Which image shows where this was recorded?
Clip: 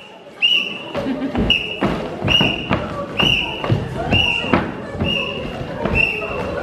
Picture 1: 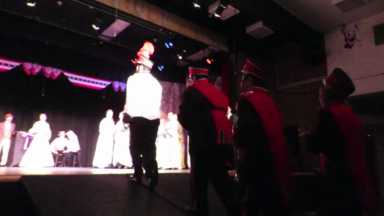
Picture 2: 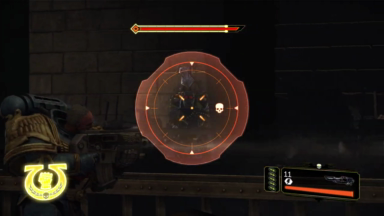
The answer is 1